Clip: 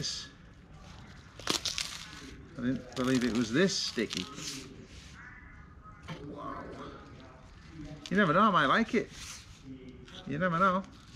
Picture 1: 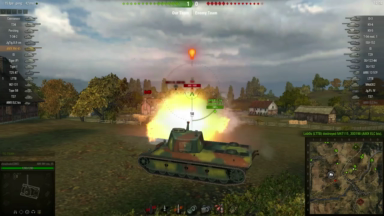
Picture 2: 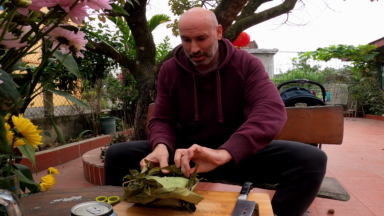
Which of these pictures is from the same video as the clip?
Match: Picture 2